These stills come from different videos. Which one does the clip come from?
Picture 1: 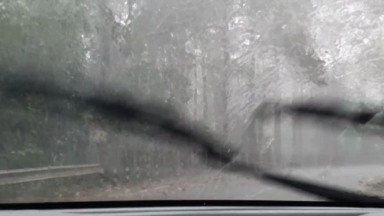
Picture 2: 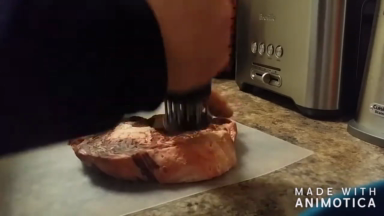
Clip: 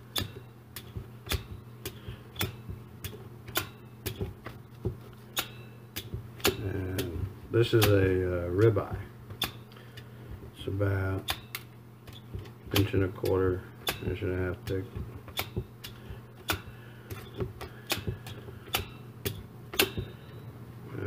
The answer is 2